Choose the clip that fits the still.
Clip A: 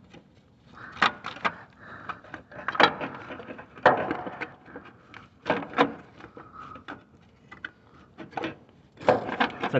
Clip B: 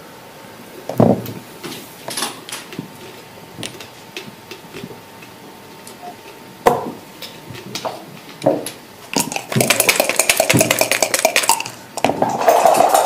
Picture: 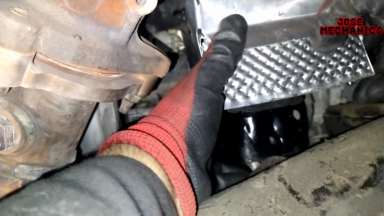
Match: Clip A